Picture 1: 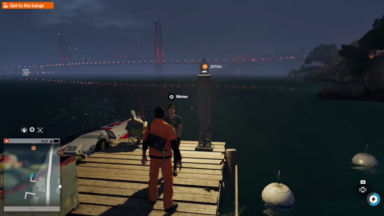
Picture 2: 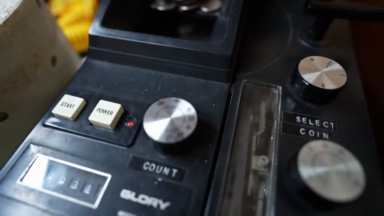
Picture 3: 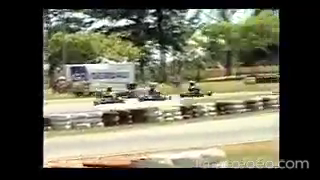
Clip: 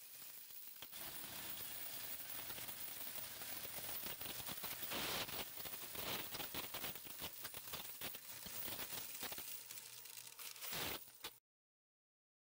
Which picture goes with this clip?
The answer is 2